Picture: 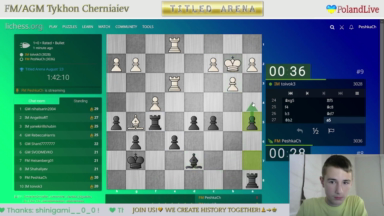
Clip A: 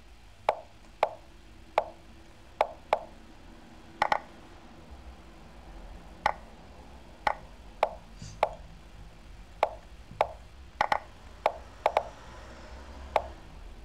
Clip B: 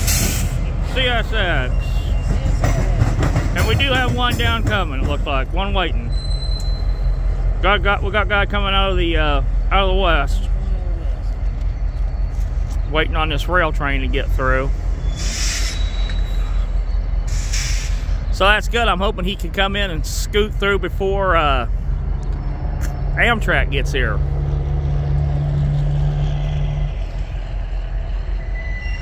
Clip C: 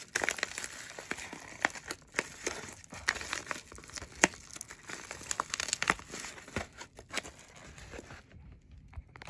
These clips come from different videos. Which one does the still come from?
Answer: A